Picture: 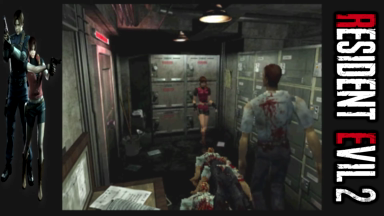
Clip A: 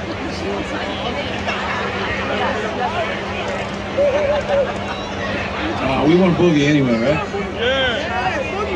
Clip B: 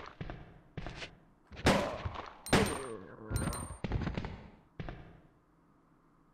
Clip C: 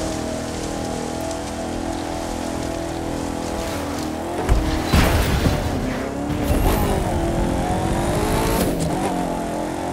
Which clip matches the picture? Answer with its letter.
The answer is B